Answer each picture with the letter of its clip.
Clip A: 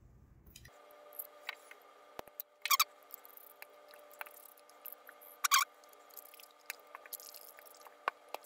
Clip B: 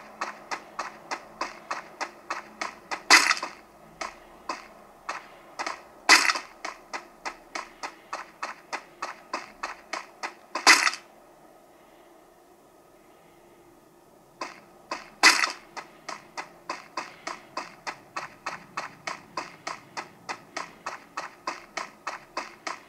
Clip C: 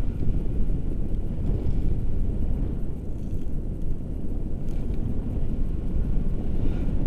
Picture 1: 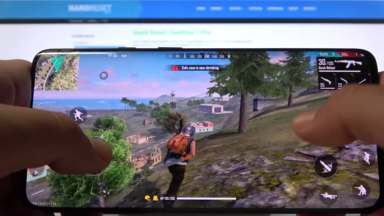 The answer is B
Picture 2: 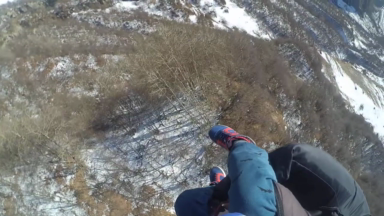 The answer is C